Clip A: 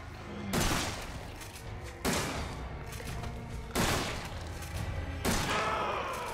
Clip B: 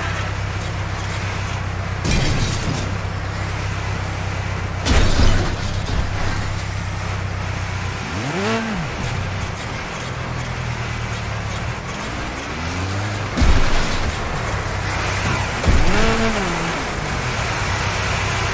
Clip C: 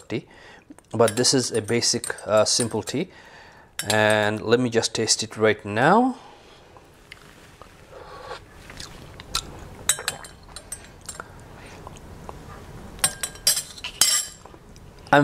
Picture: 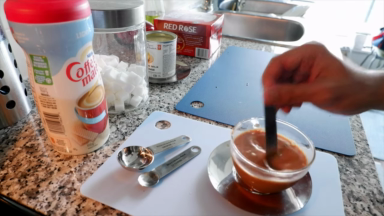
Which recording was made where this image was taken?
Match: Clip C